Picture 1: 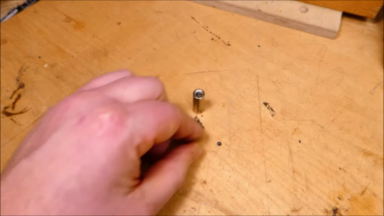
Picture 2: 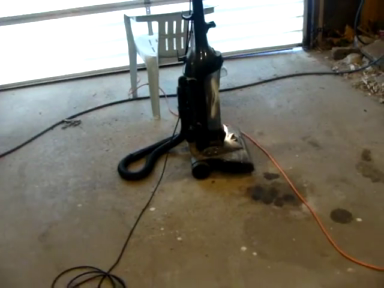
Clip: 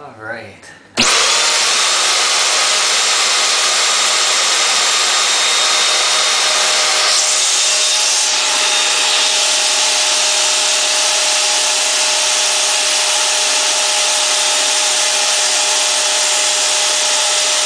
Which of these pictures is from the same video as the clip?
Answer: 2